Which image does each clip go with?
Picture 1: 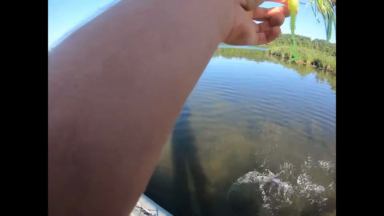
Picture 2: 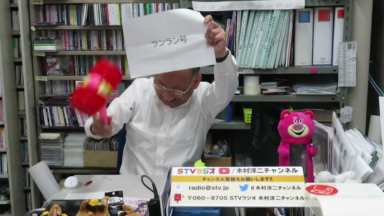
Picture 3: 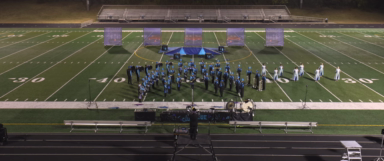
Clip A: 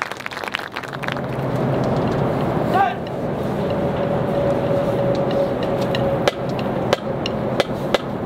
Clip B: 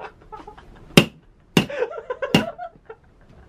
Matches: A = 3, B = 2